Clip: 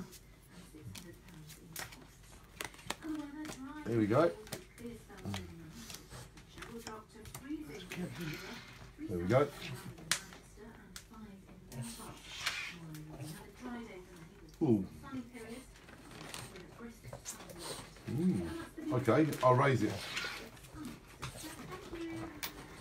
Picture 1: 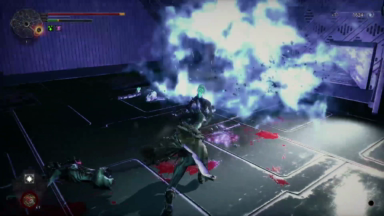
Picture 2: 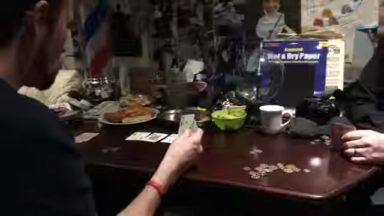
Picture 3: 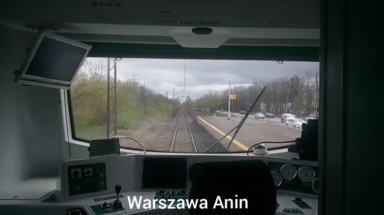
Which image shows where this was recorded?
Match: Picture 2